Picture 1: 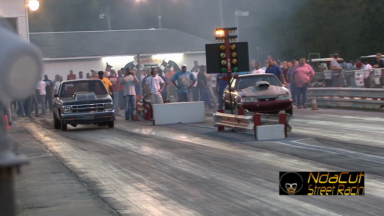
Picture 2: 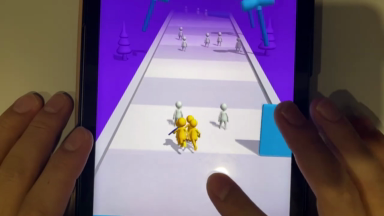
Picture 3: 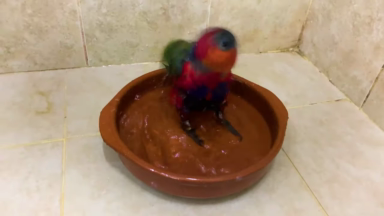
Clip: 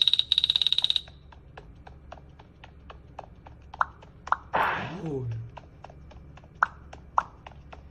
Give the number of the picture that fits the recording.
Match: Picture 2